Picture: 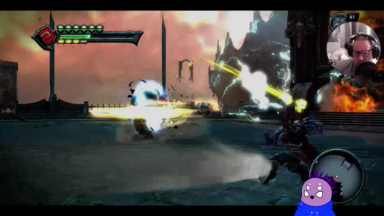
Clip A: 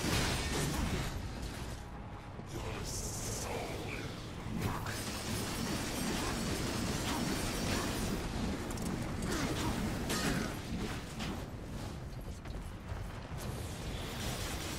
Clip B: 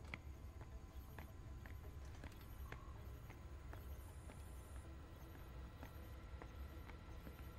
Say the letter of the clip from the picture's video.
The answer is A